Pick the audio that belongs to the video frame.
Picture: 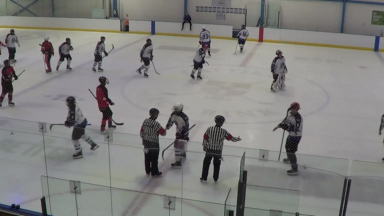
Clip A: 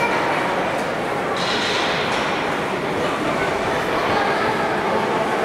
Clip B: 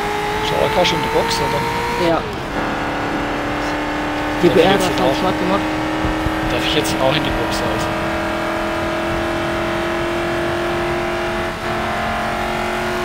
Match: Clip A